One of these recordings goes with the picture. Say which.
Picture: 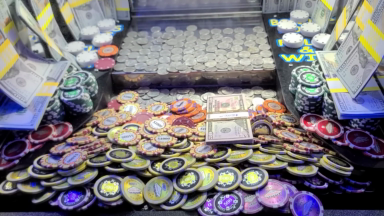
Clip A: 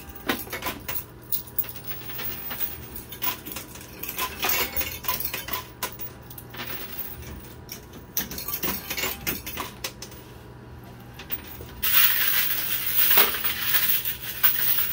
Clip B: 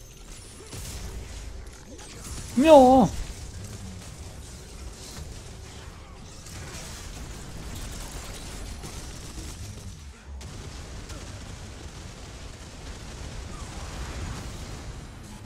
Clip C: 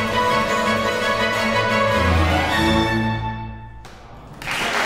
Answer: A